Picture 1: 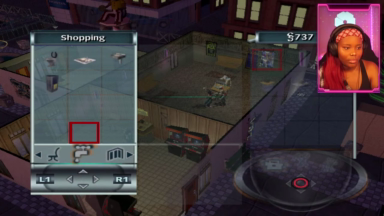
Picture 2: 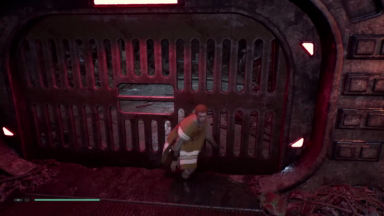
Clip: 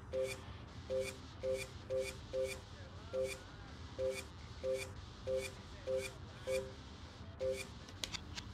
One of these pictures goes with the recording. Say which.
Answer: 1